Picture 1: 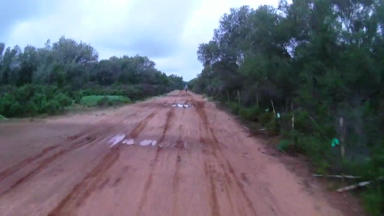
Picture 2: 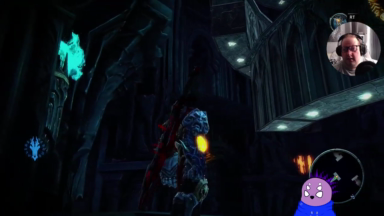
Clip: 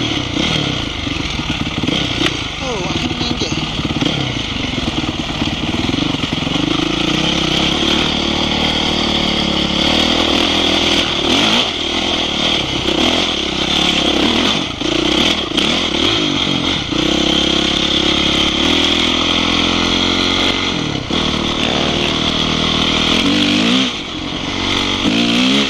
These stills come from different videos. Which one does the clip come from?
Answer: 1